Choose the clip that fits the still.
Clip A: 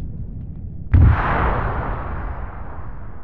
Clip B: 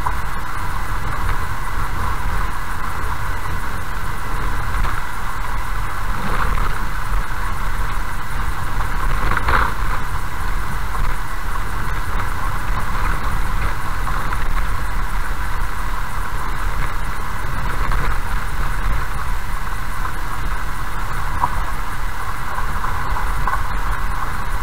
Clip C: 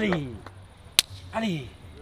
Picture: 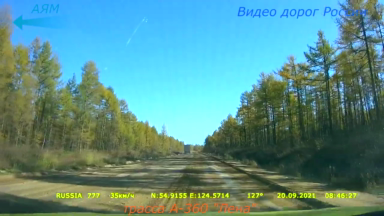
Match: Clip B